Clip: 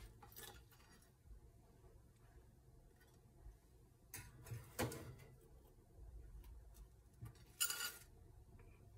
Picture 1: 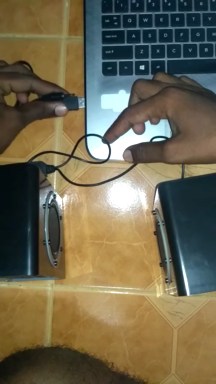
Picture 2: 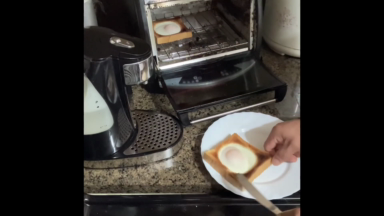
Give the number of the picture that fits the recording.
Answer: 2